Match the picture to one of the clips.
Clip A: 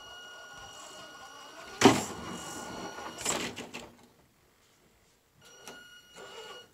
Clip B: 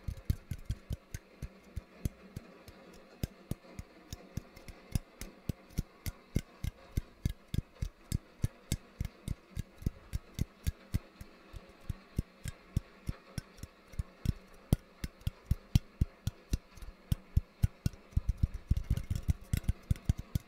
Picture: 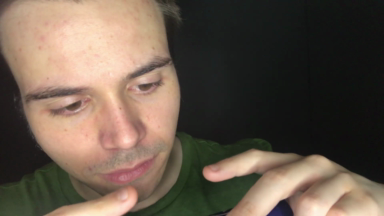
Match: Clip B